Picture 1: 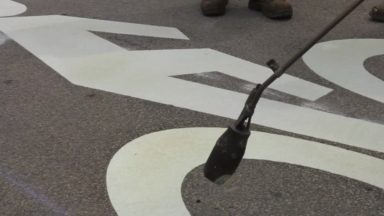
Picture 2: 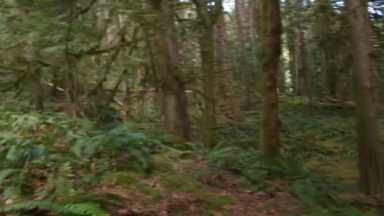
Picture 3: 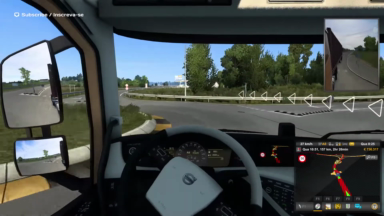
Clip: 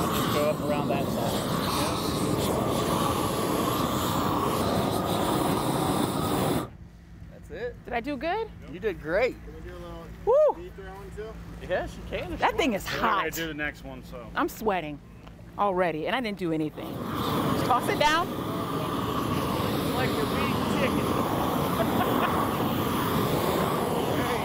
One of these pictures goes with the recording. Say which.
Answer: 1